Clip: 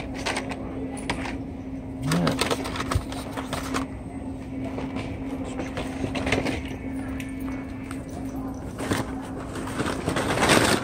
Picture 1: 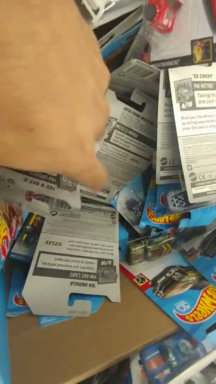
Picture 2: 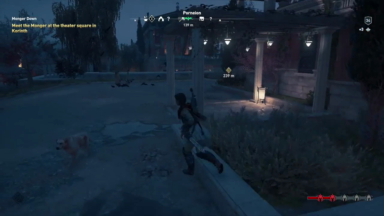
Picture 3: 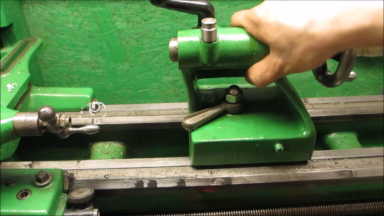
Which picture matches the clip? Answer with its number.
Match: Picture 1